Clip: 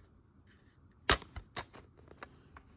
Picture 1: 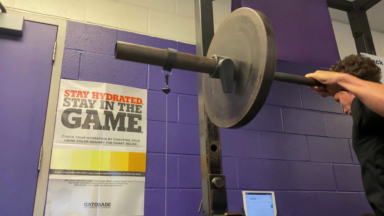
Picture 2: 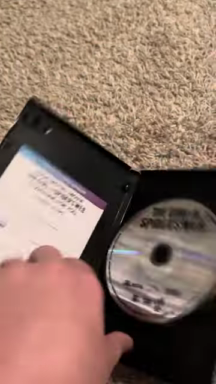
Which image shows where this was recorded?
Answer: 2